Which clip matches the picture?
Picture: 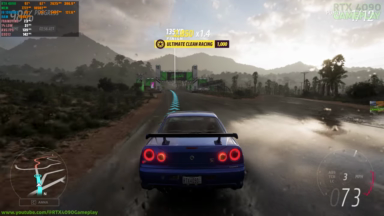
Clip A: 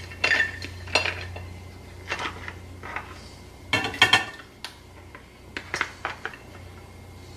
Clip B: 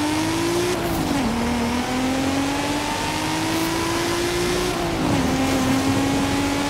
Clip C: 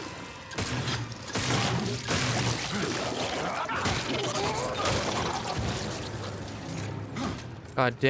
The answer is B